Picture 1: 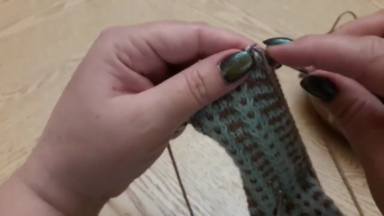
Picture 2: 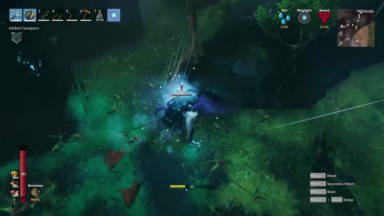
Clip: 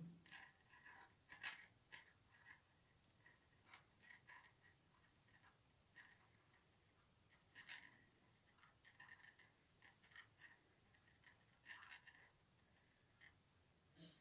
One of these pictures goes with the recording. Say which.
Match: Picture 1